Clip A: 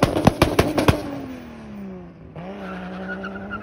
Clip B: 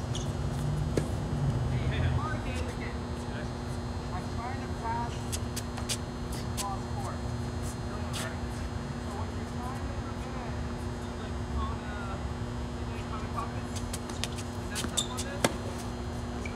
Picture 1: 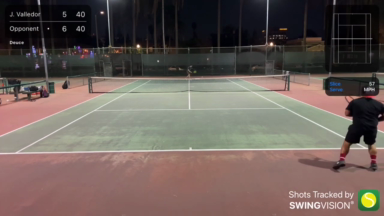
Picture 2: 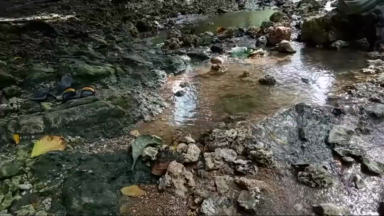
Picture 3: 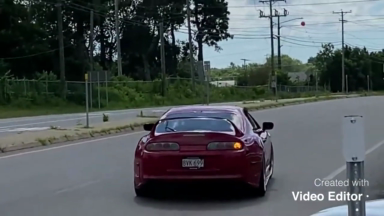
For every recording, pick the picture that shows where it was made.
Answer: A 3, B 1